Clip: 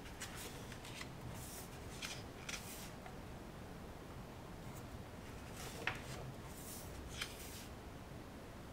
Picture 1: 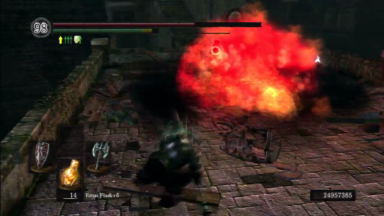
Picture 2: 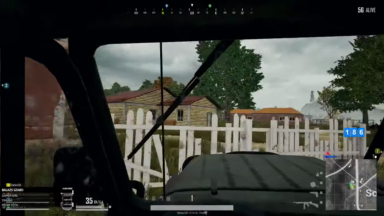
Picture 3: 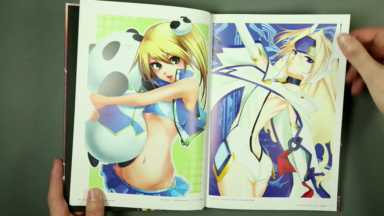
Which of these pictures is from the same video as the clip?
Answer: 3